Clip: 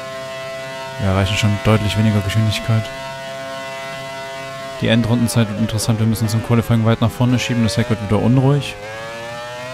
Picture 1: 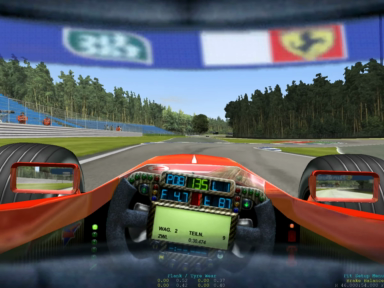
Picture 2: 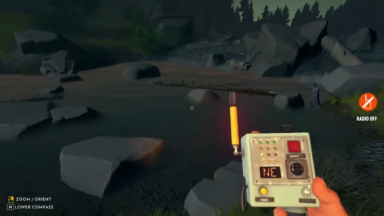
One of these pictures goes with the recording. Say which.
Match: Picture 1